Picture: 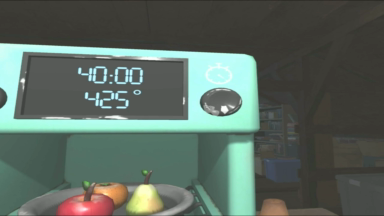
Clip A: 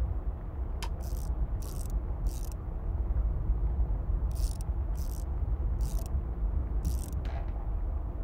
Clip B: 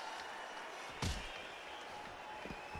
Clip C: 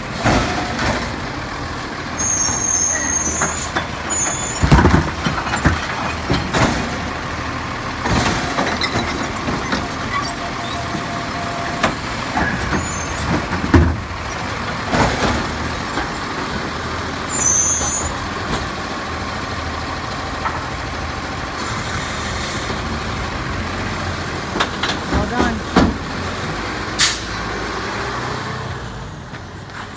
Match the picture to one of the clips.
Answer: A